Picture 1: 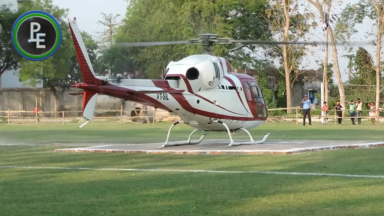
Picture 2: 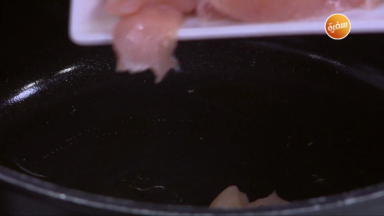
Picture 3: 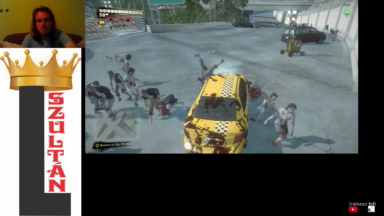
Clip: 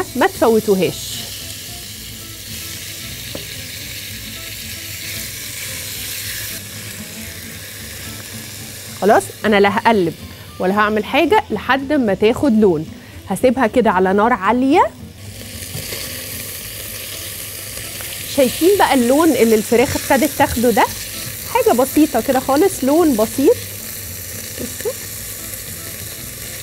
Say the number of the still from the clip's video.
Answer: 2